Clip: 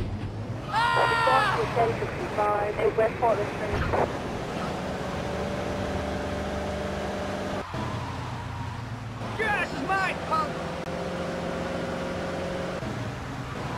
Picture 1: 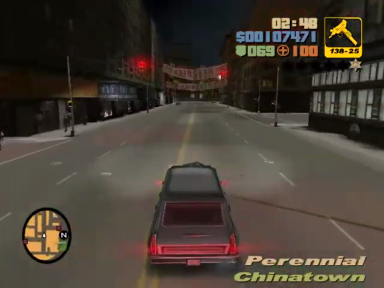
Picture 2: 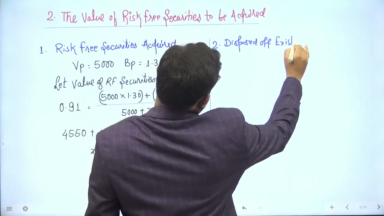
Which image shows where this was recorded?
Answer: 1